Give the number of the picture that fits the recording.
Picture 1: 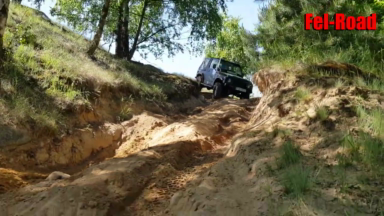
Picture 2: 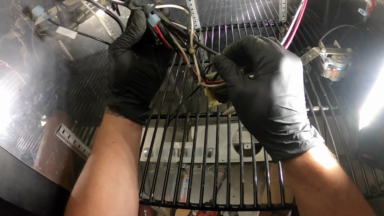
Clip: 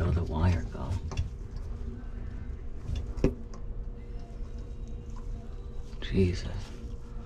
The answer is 2